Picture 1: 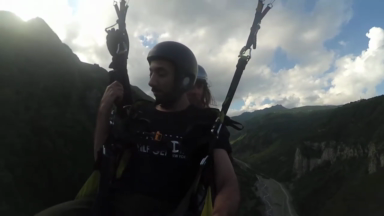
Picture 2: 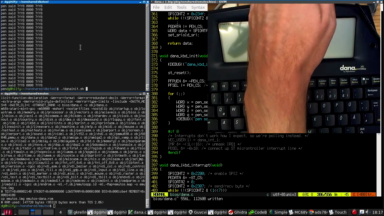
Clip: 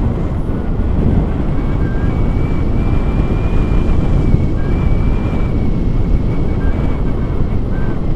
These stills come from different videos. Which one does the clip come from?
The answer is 1